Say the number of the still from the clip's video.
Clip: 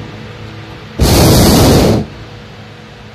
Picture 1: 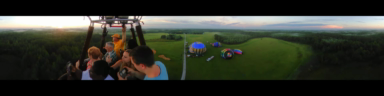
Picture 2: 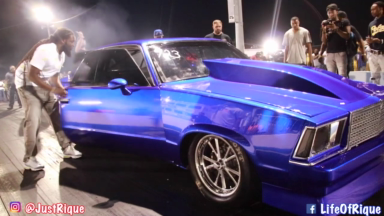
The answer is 1